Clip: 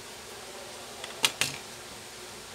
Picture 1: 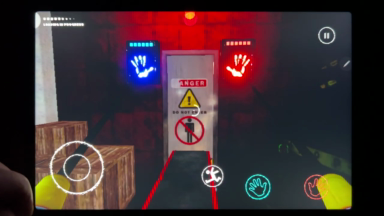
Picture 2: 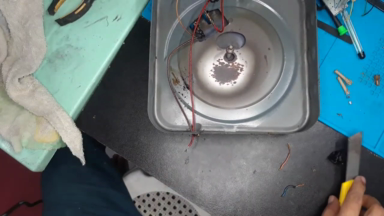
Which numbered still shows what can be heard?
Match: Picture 2